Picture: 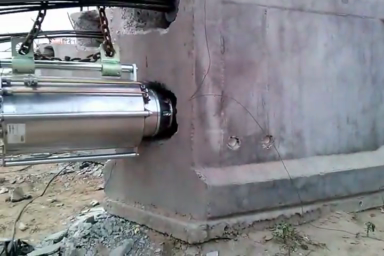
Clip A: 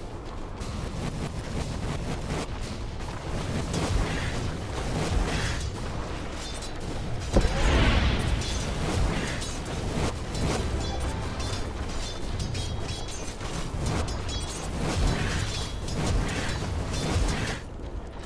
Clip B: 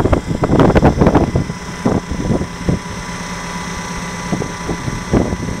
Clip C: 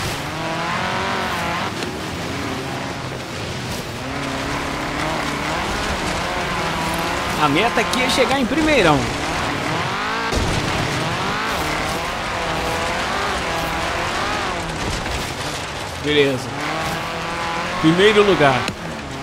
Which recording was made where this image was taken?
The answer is B